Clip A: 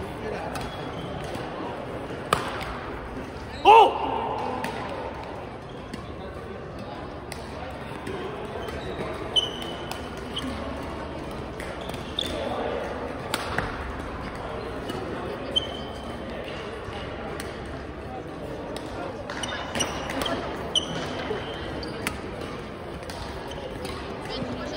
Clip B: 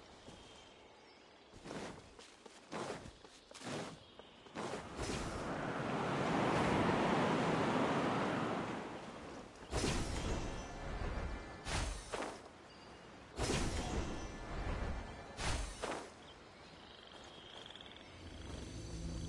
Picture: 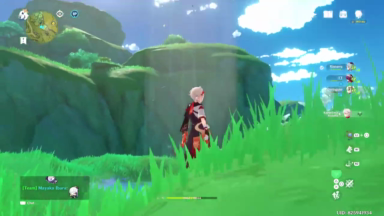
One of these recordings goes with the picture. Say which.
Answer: B